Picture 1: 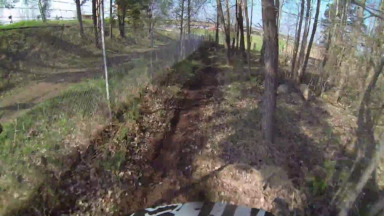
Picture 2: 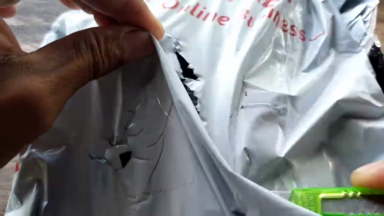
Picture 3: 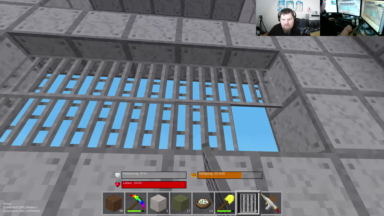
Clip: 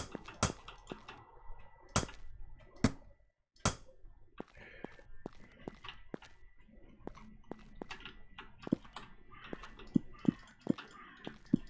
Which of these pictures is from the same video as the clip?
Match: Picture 3